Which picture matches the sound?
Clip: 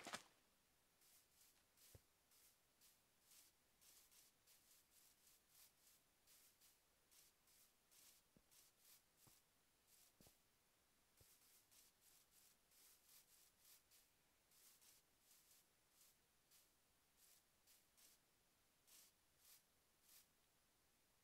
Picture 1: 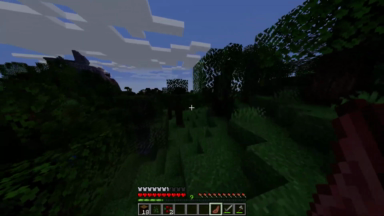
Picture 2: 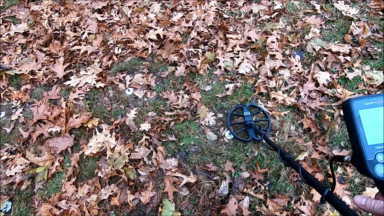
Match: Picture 1